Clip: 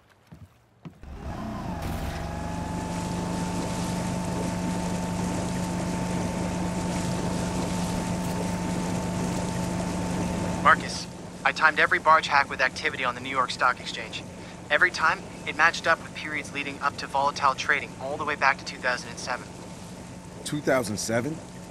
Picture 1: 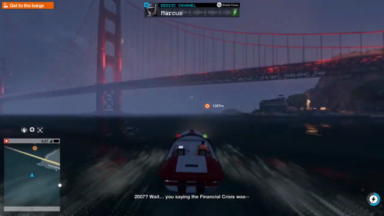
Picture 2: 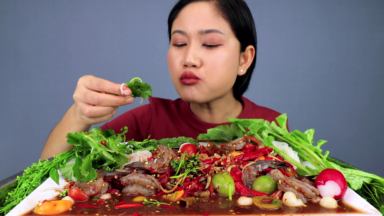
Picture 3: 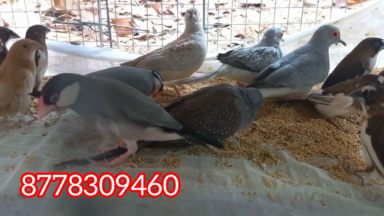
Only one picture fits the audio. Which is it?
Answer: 1